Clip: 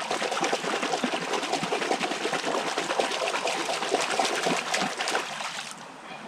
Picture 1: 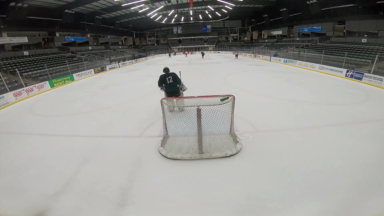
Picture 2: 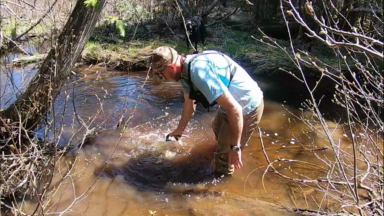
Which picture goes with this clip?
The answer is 2